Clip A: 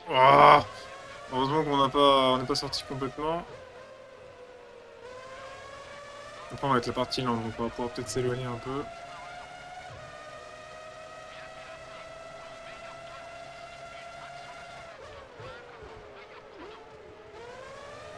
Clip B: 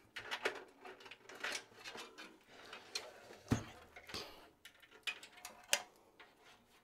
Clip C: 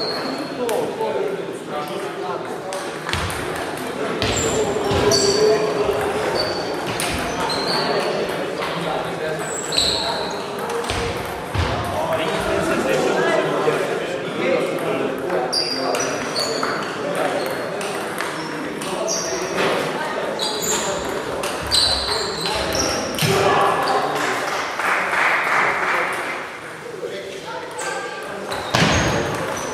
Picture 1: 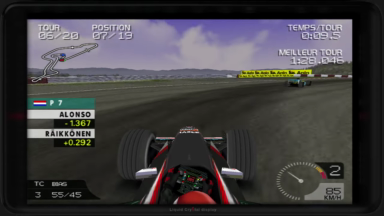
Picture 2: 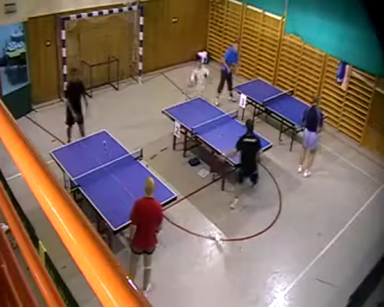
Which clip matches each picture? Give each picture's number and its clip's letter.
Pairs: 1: A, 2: C